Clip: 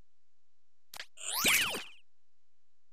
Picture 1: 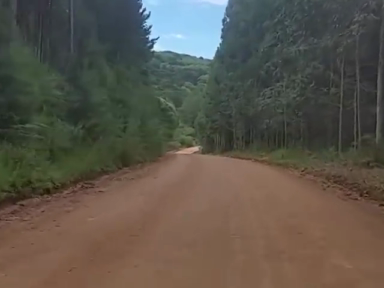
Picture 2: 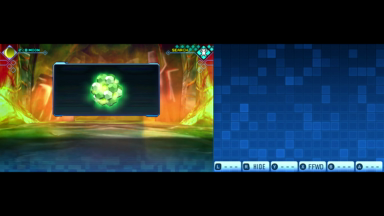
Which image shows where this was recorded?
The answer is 2